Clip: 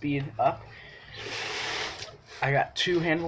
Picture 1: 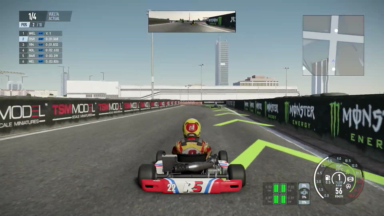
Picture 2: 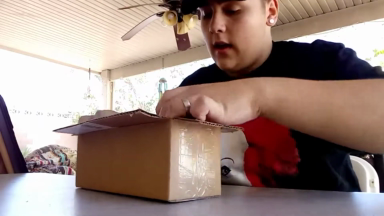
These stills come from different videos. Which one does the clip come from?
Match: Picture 2